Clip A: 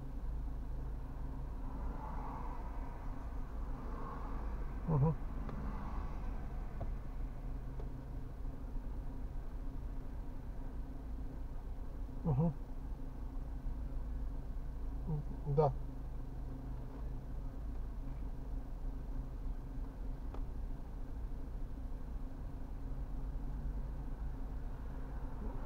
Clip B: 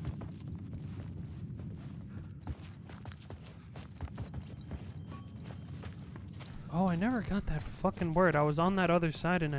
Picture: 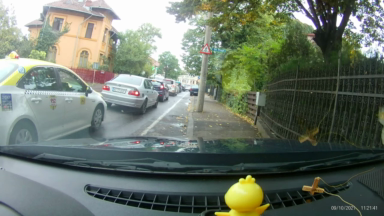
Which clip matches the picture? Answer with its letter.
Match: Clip A